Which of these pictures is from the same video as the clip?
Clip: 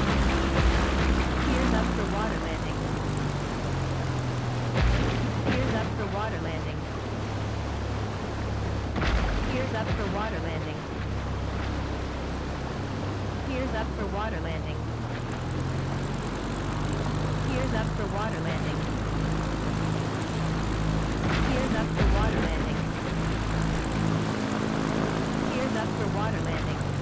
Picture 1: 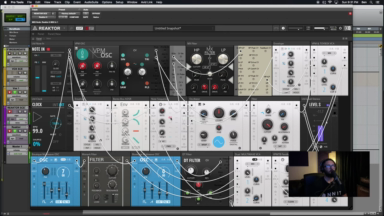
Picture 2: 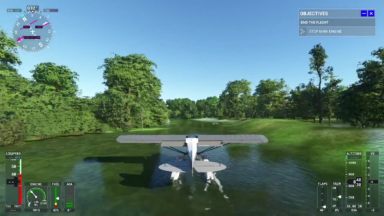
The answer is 2